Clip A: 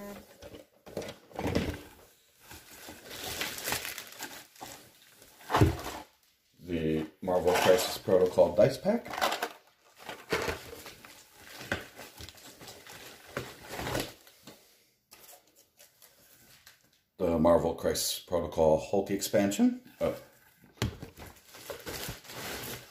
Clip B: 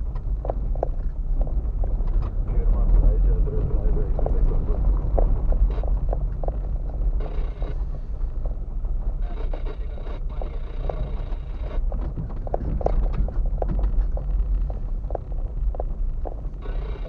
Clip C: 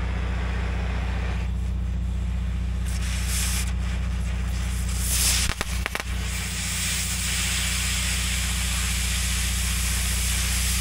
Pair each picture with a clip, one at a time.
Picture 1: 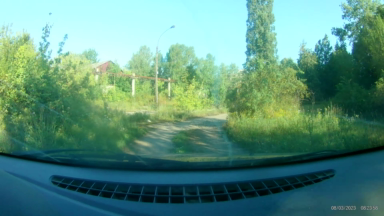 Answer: B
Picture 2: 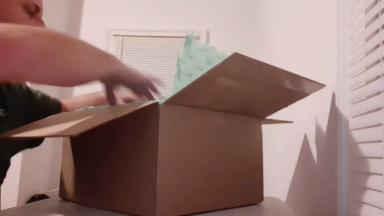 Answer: A